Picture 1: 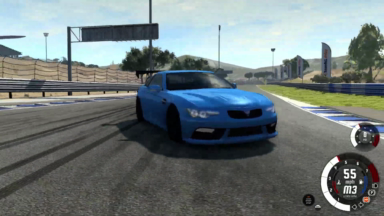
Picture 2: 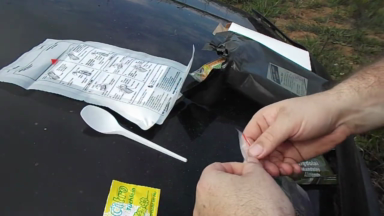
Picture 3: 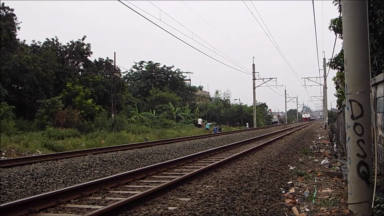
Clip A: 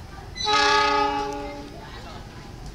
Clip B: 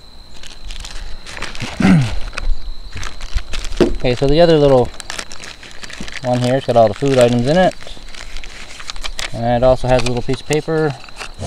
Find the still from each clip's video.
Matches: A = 3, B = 2